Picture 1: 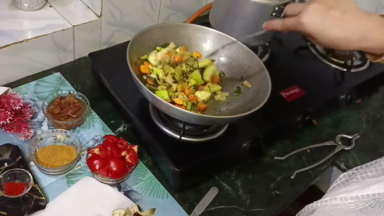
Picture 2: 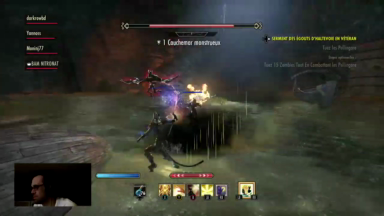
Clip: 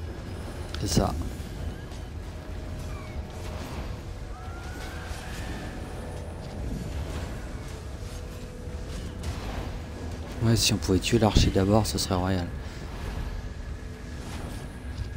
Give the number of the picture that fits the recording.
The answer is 2